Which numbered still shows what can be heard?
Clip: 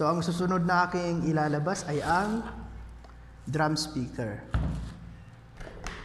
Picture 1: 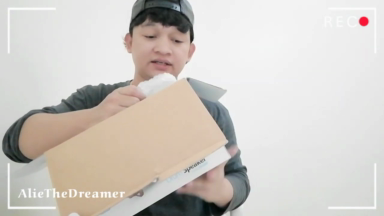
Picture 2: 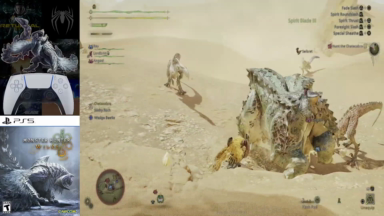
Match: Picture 1